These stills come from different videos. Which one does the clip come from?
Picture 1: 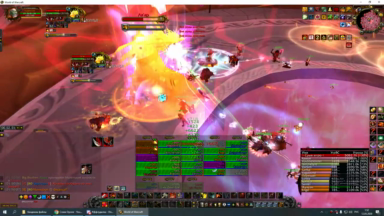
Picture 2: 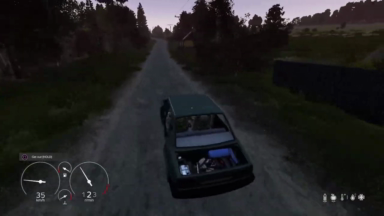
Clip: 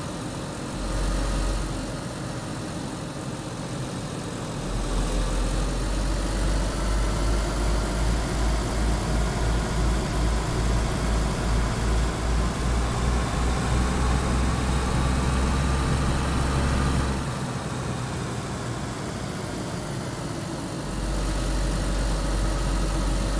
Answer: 2